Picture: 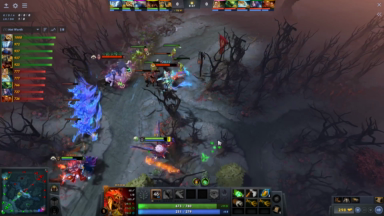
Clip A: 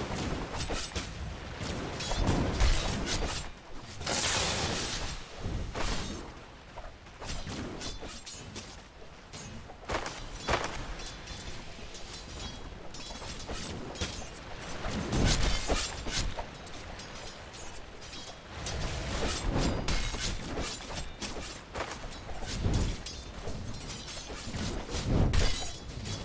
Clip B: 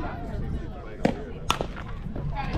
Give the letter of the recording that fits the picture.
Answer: A